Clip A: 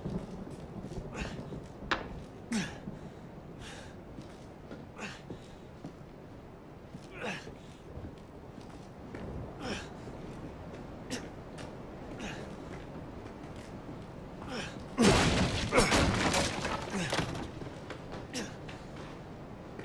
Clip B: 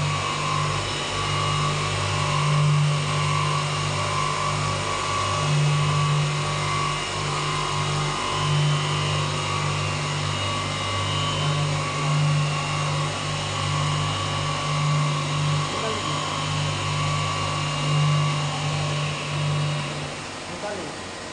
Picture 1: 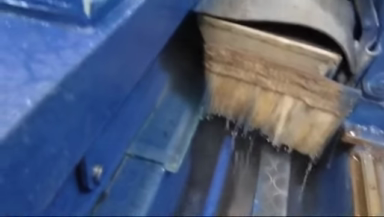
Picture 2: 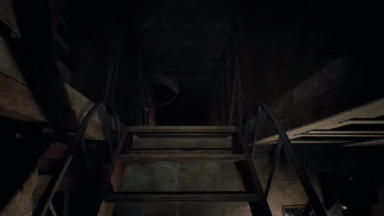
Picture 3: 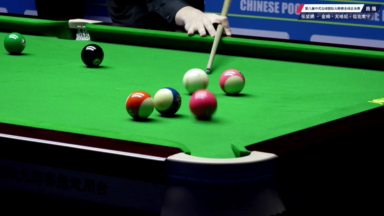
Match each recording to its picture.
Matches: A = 2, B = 1